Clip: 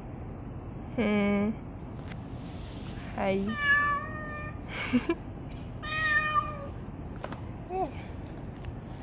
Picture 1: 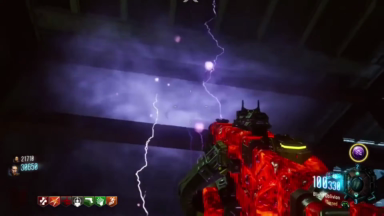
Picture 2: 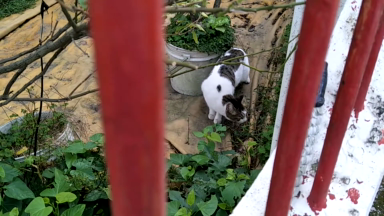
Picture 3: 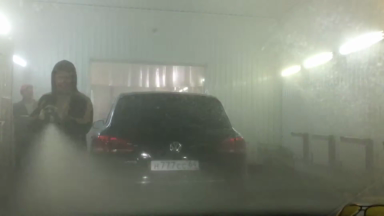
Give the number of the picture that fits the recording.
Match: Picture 2